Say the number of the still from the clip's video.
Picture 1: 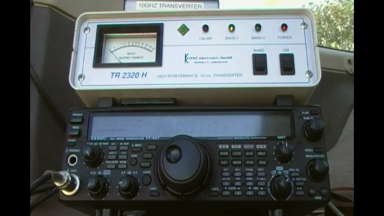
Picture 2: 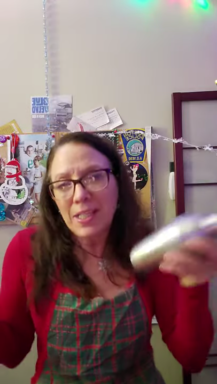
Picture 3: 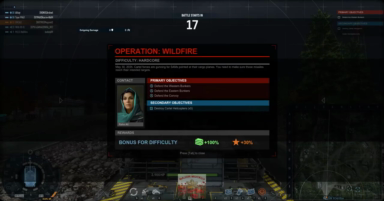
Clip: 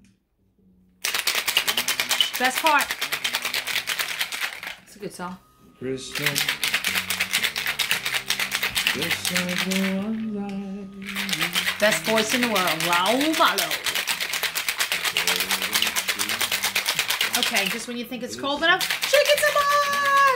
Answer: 2